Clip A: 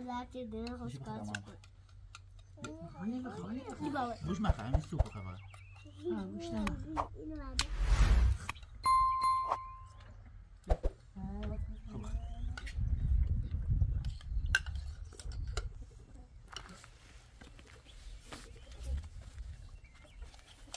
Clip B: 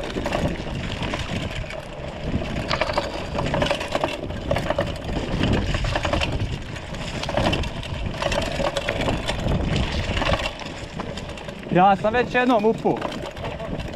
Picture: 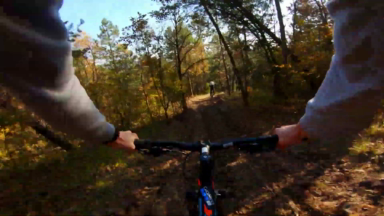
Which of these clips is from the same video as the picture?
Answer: B